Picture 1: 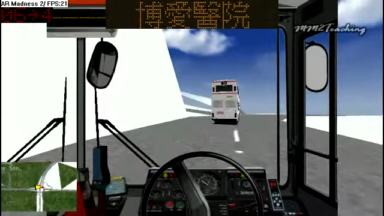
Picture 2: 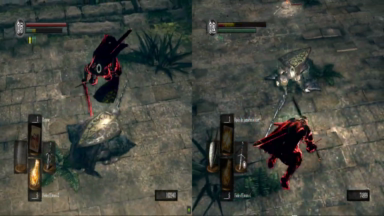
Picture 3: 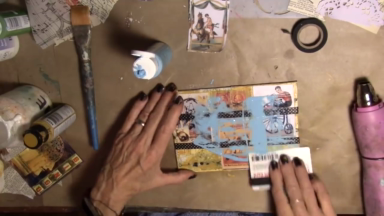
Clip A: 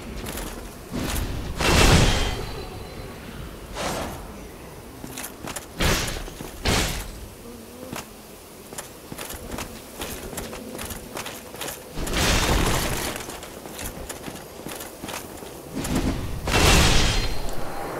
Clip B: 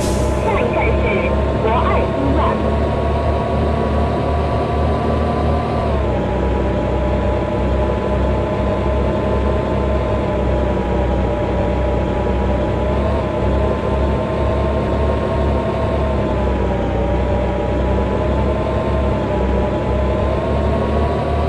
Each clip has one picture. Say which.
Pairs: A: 2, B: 1